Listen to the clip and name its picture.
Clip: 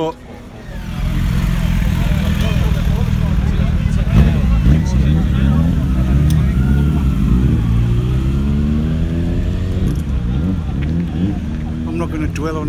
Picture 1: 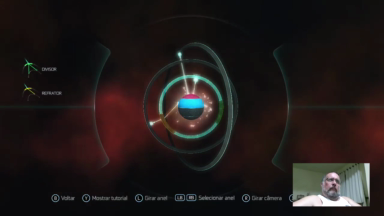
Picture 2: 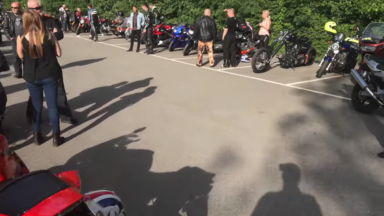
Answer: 2